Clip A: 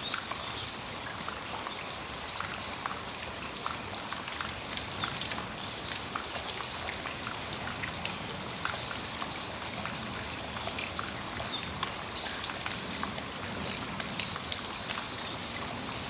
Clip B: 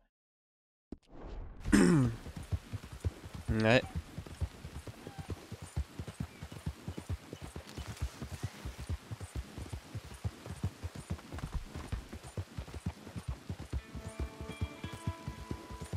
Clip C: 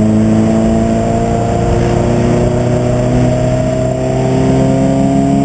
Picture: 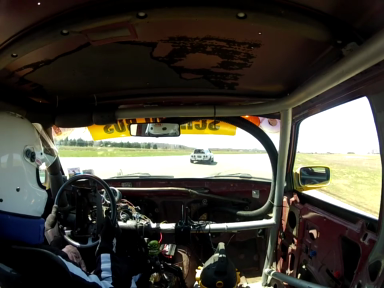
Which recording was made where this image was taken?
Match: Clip C